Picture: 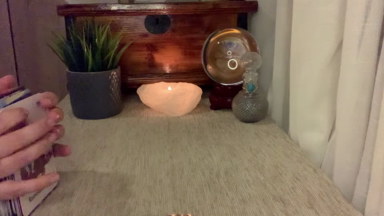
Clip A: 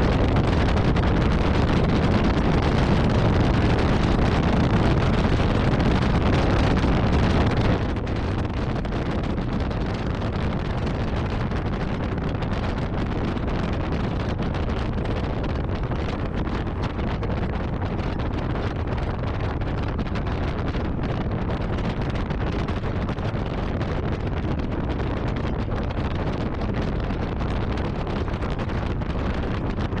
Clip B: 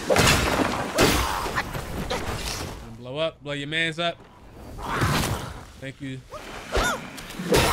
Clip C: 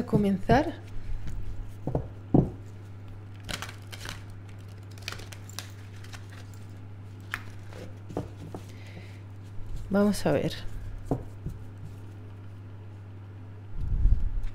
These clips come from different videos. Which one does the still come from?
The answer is C